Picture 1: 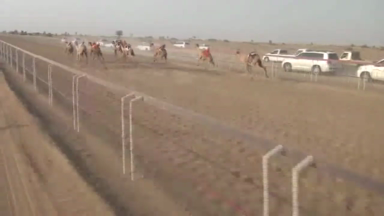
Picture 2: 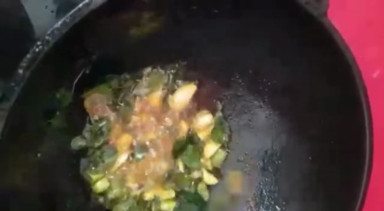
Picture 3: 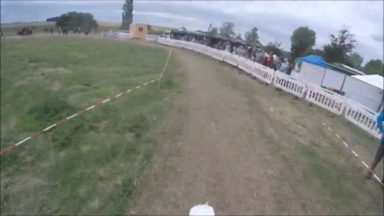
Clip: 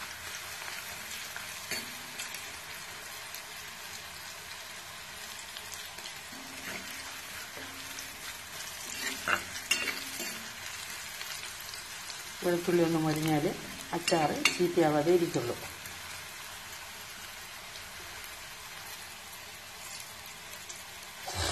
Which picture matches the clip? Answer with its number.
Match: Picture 2